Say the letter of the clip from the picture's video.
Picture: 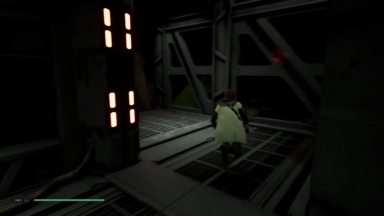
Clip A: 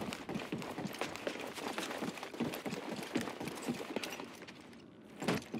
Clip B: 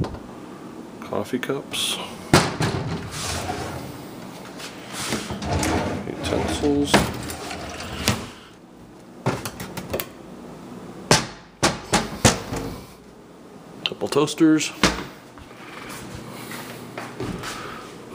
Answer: A